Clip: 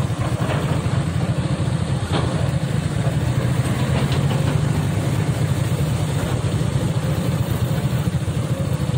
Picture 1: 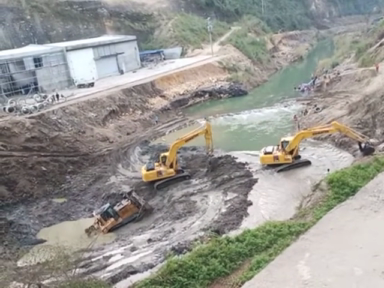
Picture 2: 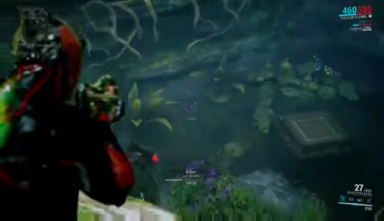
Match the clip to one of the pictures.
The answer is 1